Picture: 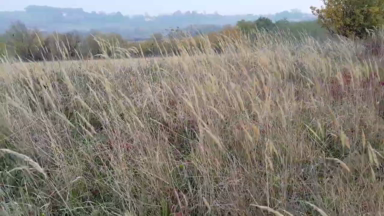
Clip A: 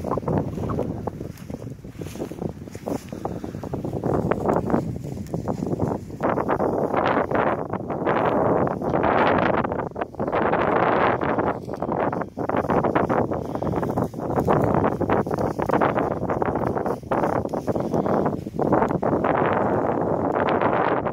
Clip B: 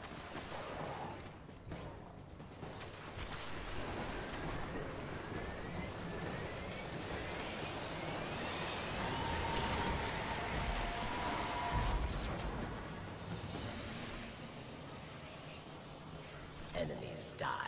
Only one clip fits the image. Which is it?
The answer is A